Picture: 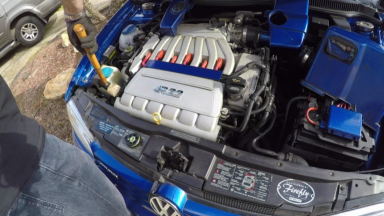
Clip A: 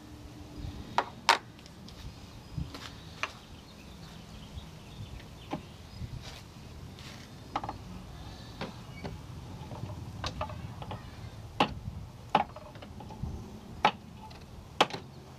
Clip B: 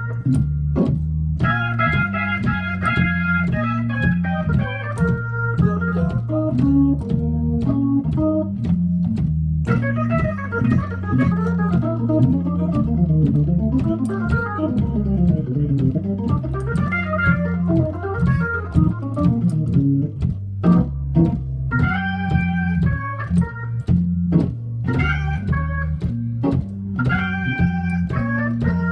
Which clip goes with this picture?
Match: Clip A